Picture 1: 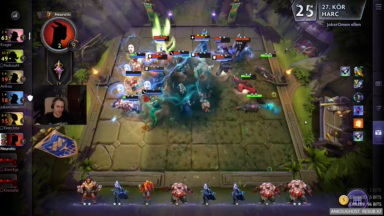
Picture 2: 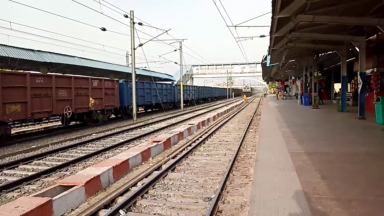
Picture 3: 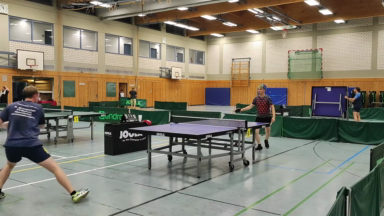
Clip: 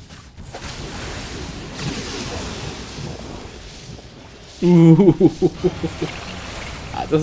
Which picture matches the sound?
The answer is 1